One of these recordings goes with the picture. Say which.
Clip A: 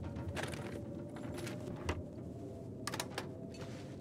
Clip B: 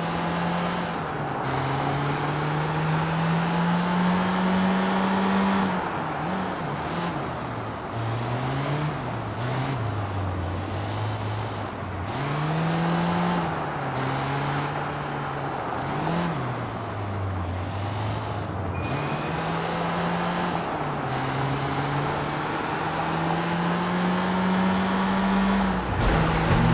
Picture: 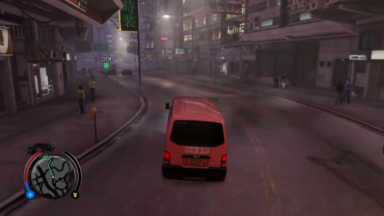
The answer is B